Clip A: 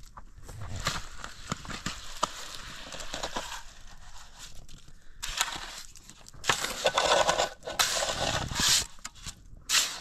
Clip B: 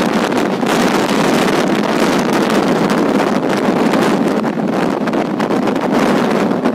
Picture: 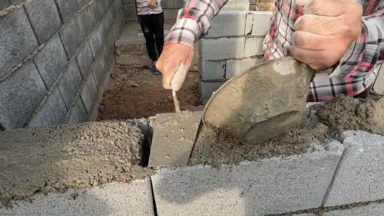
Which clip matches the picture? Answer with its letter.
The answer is A